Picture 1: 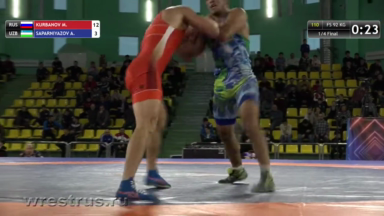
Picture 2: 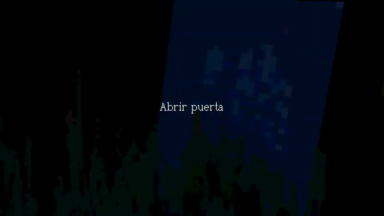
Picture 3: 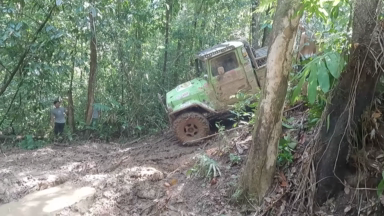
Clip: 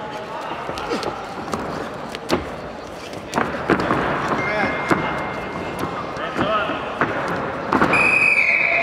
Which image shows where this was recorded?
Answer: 1